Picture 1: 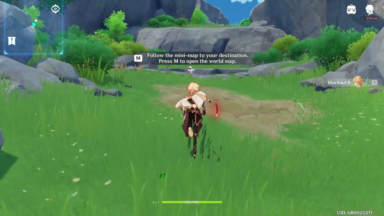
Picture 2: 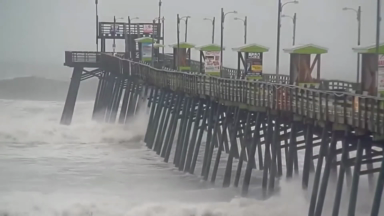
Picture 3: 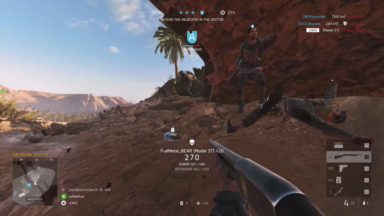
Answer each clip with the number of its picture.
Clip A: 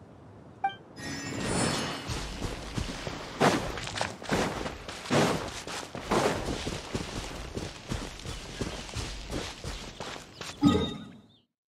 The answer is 1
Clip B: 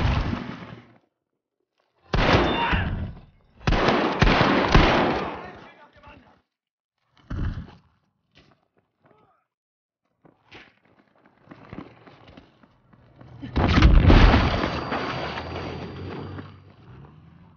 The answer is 3